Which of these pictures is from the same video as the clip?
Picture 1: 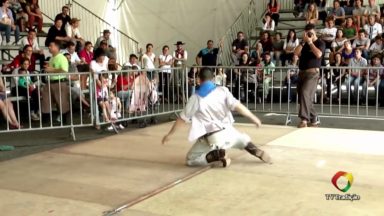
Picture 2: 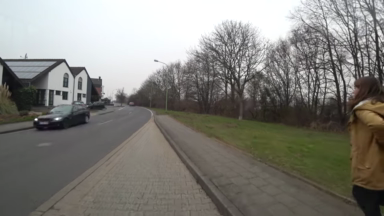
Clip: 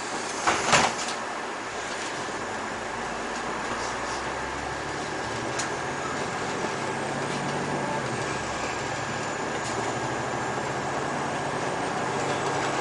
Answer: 2